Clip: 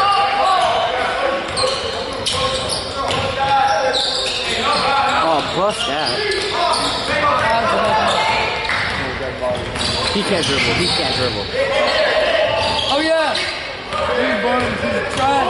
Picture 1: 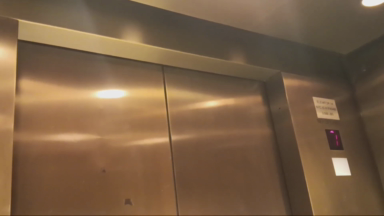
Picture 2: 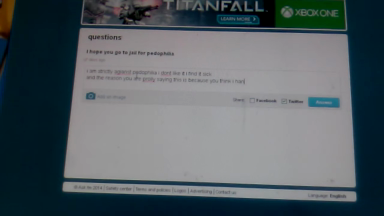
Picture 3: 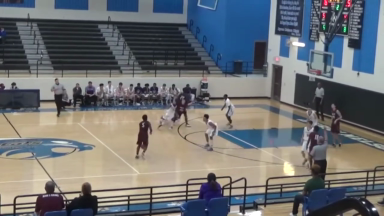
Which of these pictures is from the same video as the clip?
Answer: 3